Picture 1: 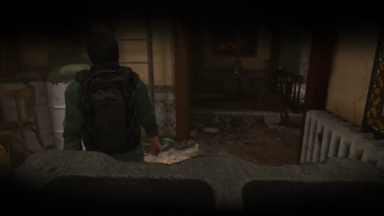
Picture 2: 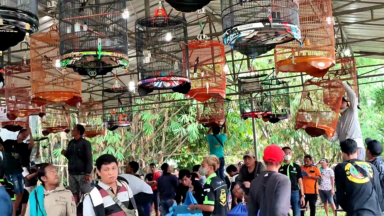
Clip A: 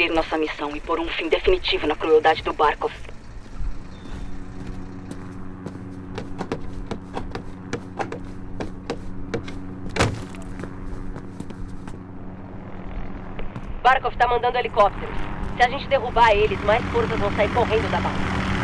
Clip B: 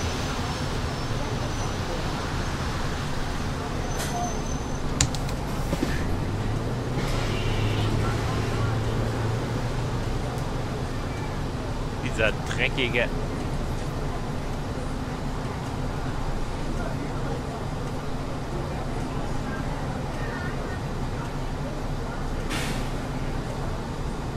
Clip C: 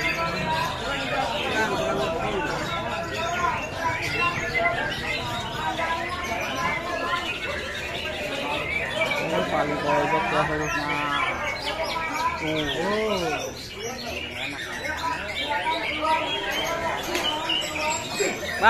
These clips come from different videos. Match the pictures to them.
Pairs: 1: A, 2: C